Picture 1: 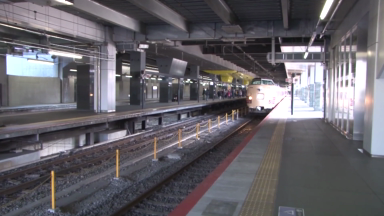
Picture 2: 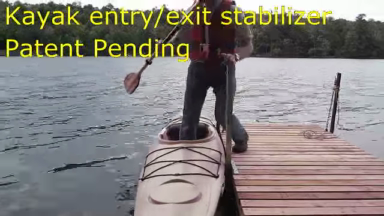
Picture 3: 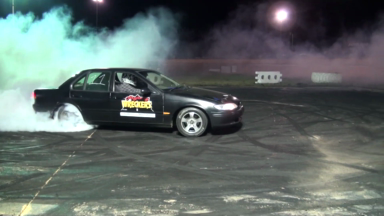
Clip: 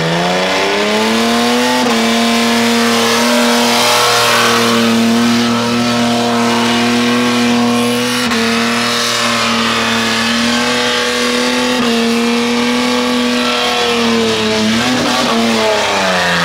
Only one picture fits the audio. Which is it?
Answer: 3